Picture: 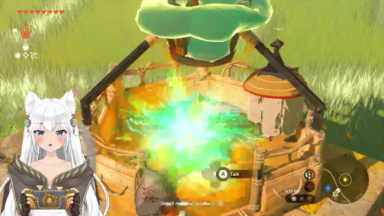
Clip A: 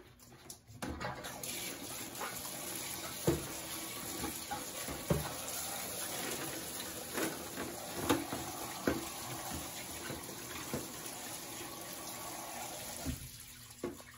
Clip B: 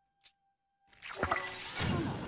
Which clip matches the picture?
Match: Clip B